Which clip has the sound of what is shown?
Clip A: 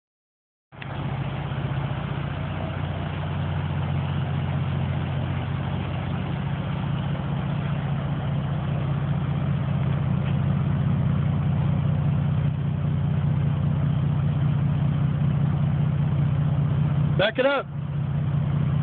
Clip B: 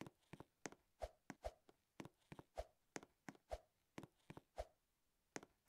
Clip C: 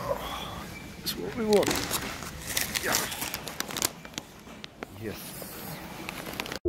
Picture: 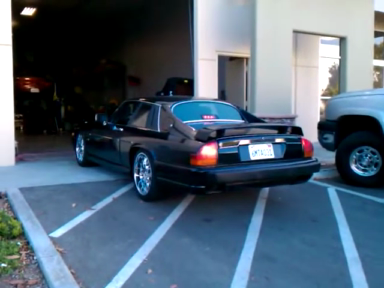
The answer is A